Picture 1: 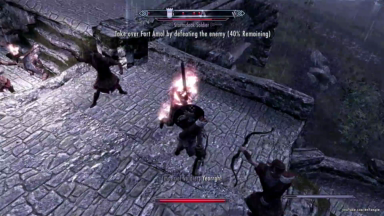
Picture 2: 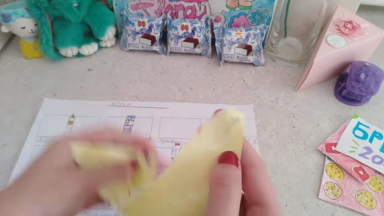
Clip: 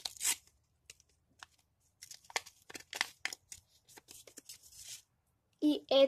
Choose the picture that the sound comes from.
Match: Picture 2